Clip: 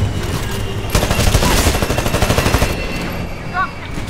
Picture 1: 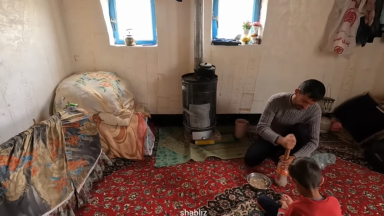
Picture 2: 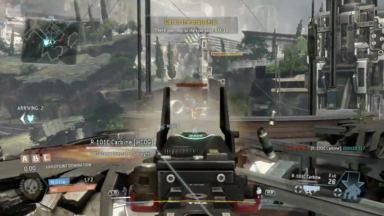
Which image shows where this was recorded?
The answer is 2